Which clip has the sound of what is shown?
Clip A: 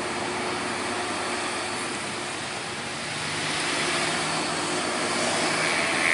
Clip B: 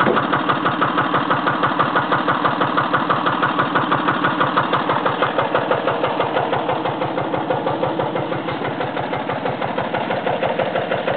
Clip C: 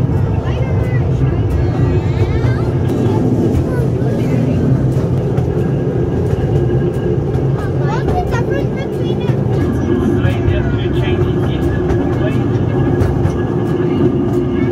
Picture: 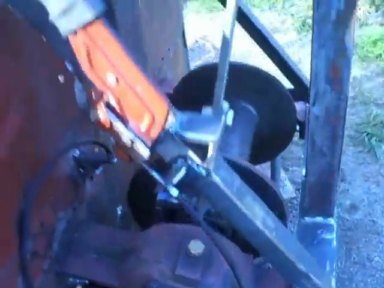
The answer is B